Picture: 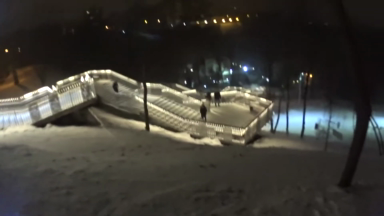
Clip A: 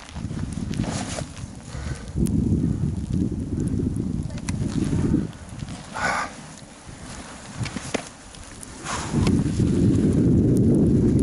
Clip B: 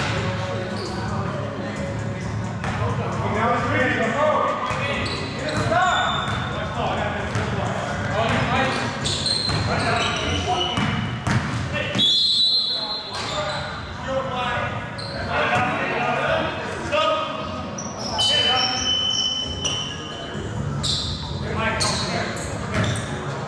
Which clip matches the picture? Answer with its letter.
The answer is A